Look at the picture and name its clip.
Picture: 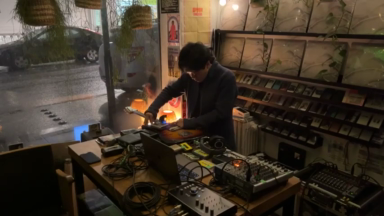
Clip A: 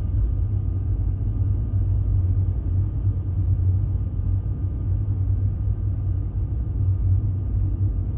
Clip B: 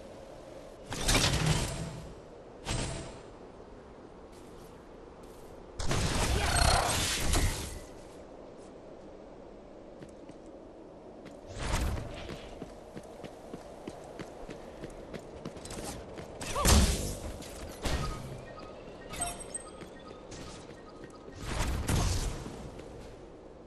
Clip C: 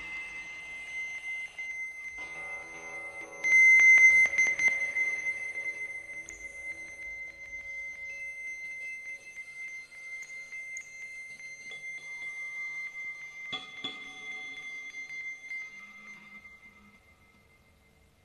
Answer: C